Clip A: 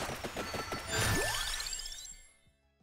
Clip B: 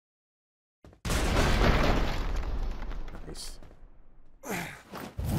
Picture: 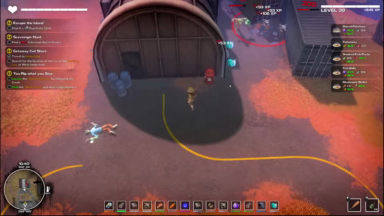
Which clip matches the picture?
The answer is B